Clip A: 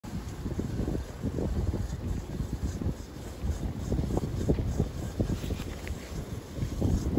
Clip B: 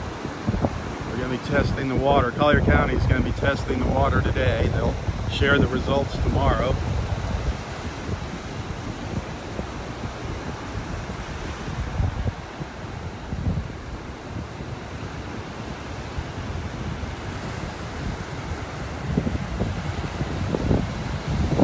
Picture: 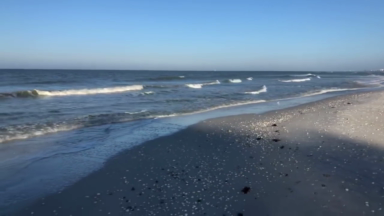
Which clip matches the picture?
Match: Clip B